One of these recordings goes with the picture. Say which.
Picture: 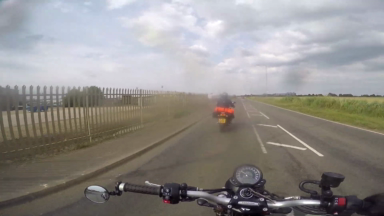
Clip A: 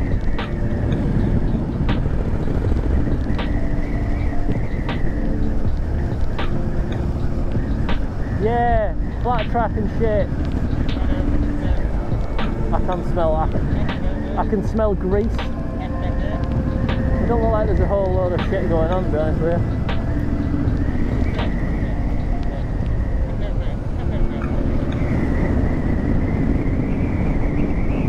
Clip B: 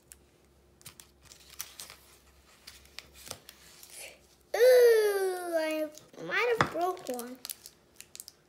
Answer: A